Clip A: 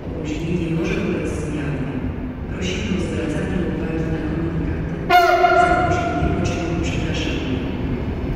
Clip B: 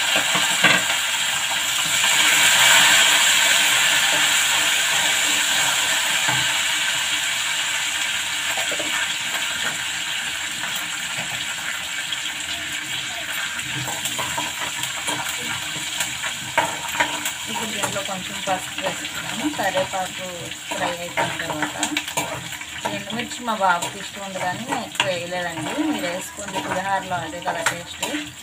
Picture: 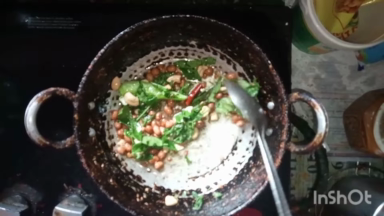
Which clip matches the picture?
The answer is B